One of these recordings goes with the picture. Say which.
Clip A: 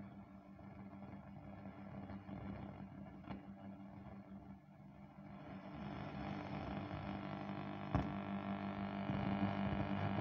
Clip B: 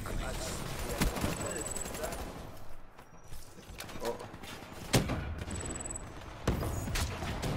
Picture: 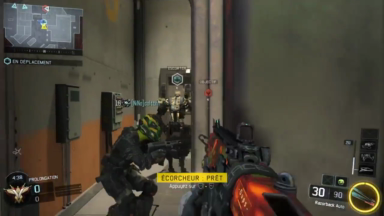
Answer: B